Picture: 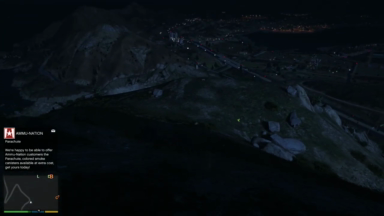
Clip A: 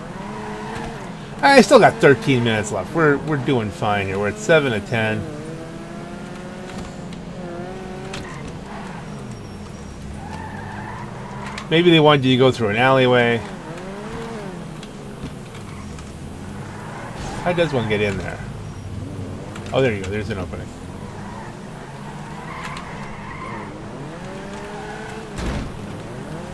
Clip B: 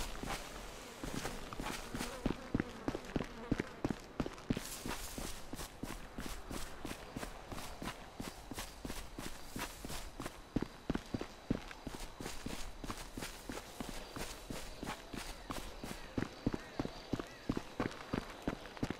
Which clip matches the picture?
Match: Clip B